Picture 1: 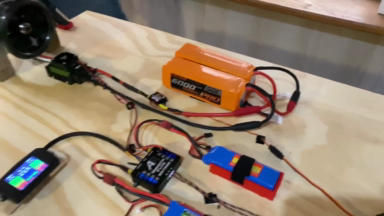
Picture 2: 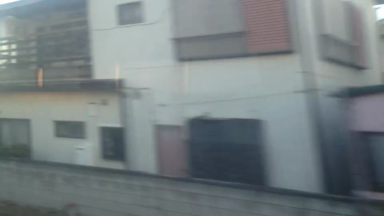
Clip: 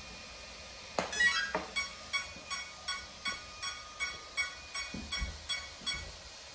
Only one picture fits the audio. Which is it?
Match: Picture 1